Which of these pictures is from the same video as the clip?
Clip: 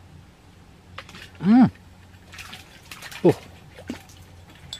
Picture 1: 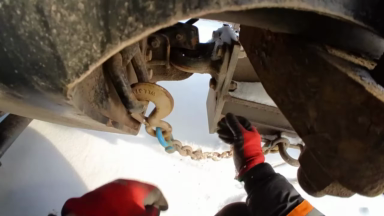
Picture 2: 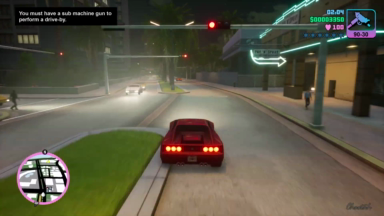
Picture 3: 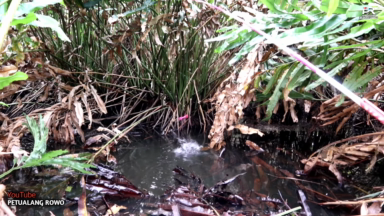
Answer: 3